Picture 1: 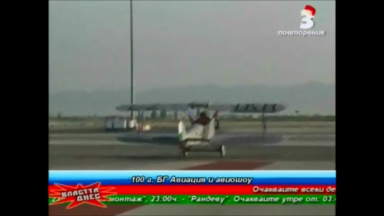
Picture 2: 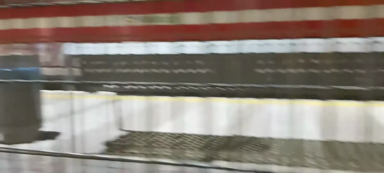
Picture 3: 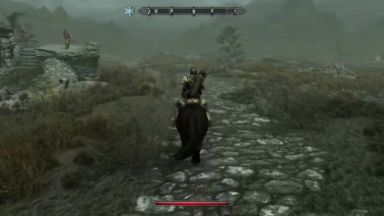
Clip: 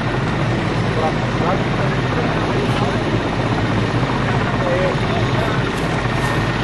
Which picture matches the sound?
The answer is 1